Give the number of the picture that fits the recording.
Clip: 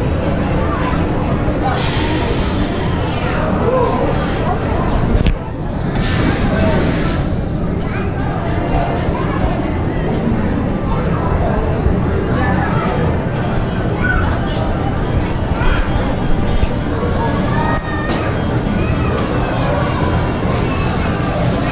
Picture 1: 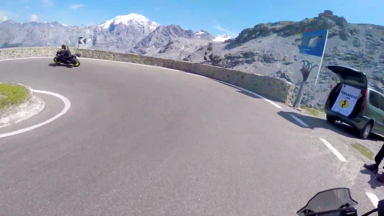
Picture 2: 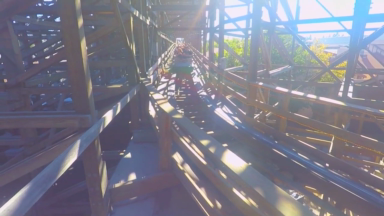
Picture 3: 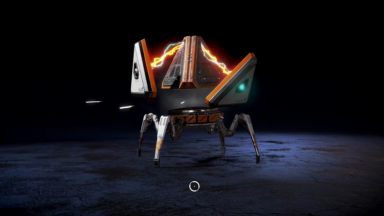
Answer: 2